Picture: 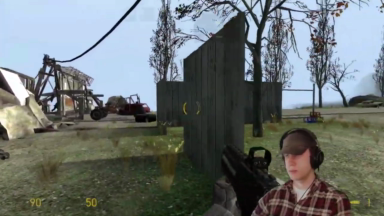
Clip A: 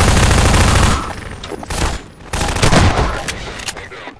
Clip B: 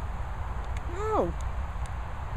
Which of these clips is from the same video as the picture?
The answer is A